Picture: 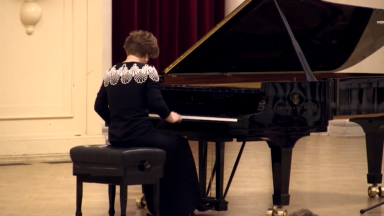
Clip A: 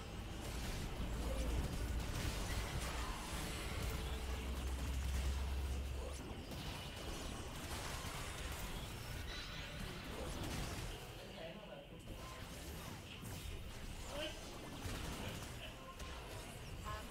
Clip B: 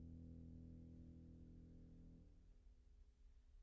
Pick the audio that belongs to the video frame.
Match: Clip B